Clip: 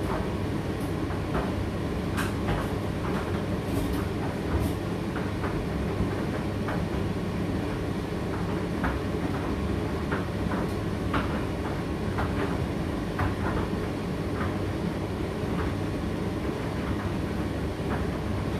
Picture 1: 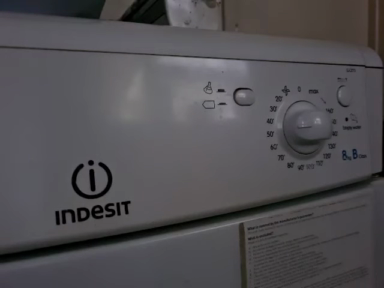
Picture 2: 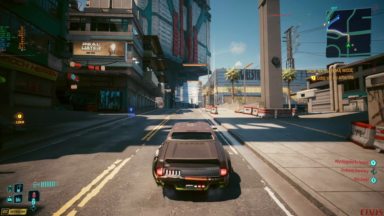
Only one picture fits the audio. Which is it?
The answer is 1